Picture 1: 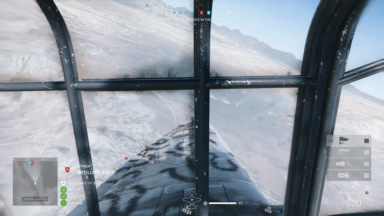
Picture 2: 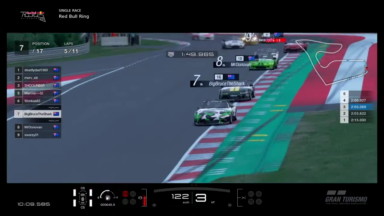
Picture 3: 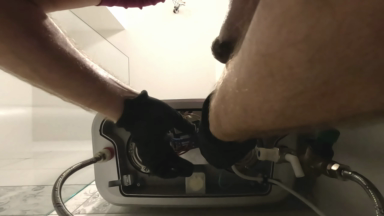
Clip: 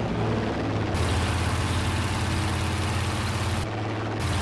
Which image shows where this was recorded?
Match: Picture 1